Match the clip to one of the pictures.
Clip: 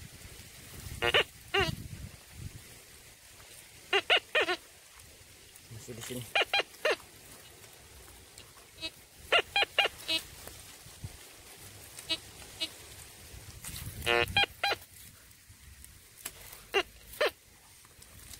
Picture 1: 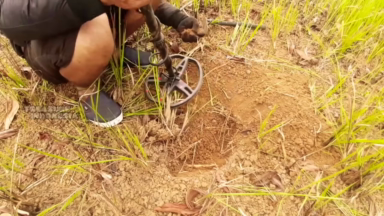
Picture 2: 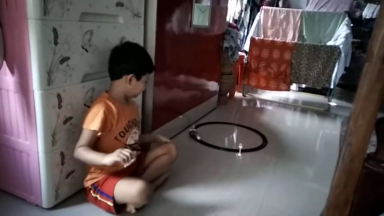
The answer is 1